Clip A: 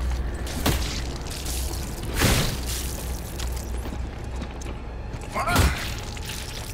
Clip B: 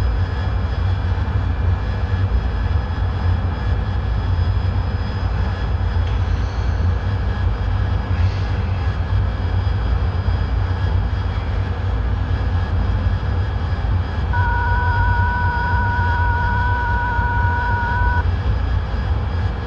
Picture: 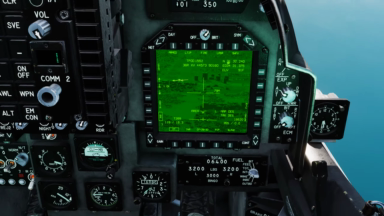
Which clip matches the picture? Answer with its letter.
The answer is B